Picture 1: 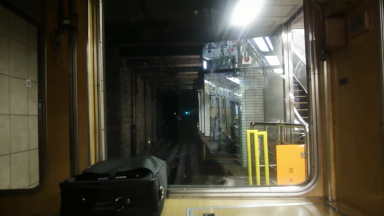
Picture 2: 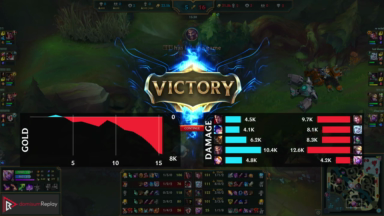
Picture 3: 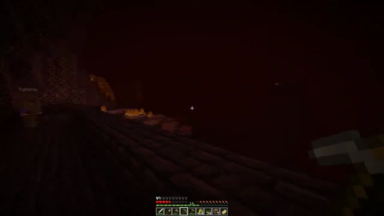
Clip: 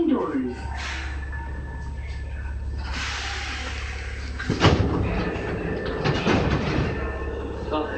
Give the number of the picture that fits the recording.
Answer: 1